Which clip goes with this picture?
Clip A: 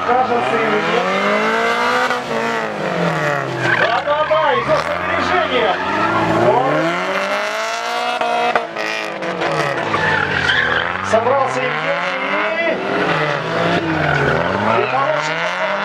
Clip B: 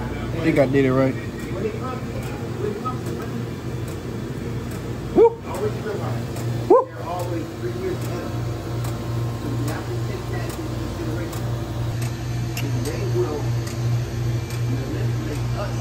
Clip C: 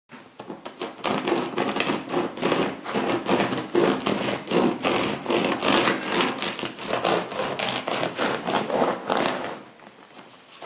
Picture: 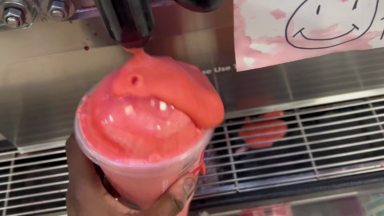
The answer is B